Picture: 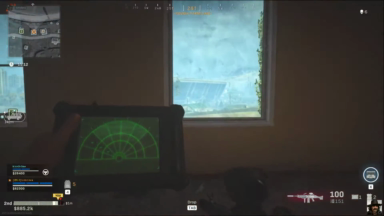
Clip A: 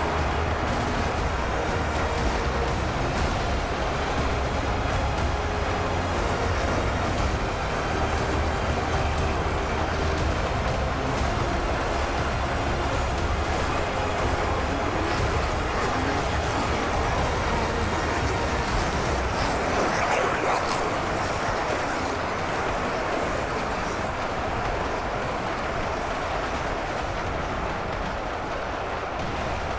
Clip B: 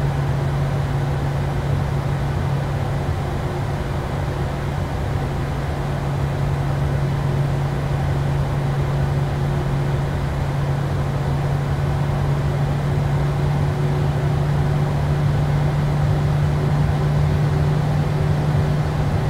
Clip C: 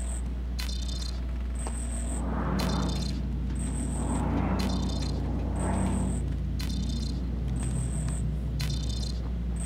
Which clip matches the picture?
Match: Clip C